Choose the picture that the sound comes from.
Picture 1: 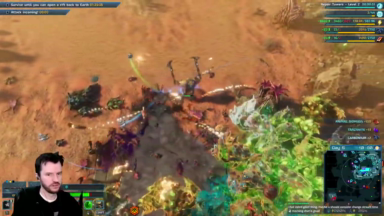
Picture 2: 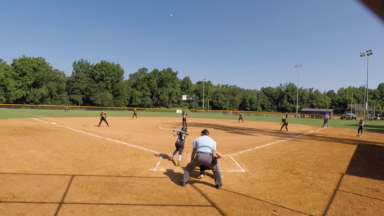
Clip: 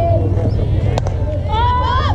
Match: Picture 2